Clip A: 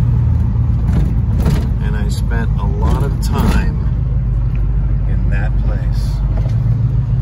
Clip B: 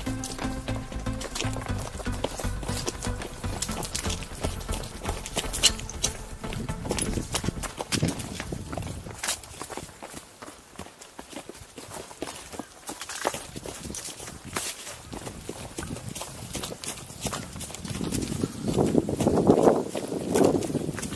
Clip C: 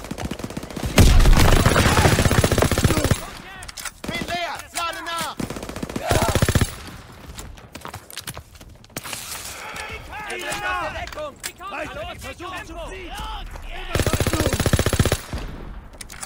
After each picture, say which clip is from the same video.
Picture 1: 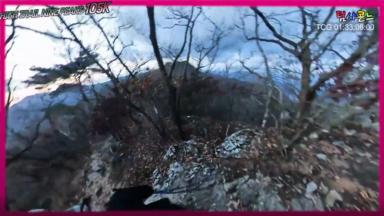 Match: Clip B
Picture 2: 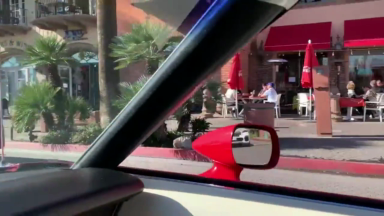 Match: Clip A